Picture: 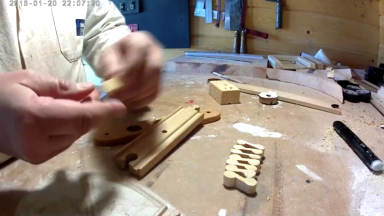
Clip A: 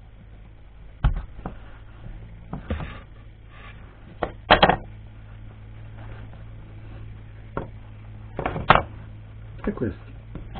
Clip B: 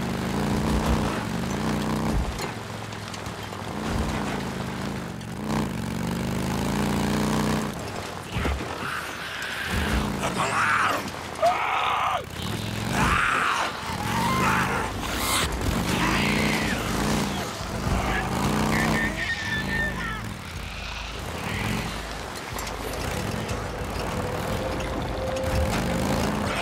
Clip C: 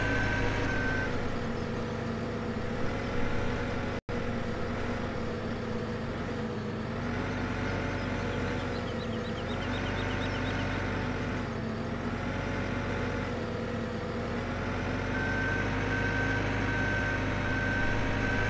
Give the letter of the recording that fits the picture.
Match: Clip A